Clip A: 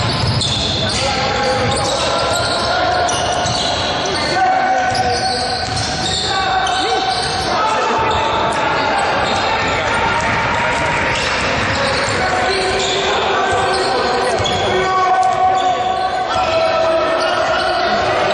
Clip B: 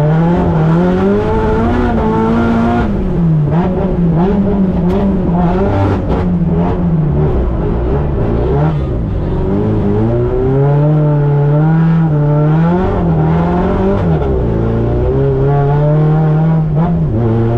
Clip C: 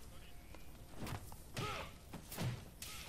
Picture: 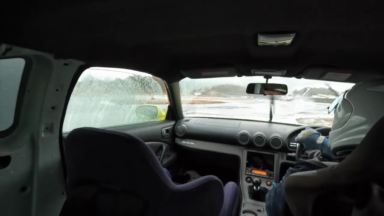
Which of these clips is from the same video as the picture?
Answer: B